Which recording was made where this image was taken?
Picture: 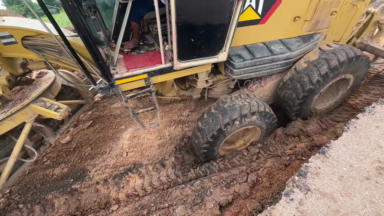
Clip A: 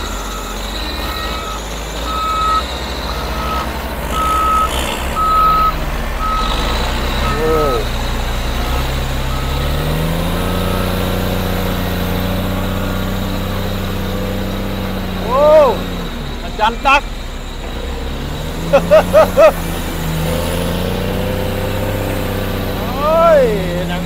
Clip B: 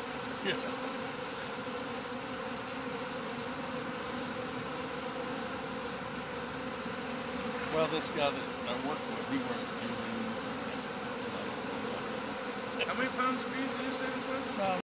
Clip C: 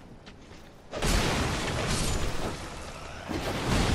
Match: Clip A